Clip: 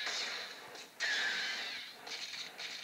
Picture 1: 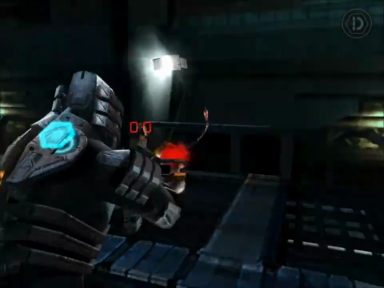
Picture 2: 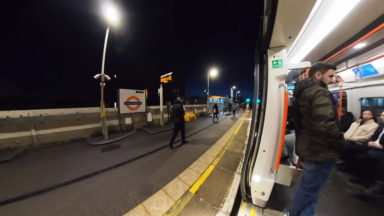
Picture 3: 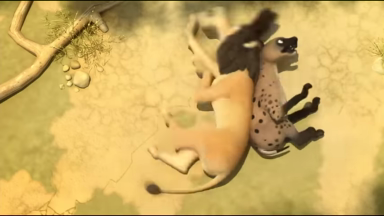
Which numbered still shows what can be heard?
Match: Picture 1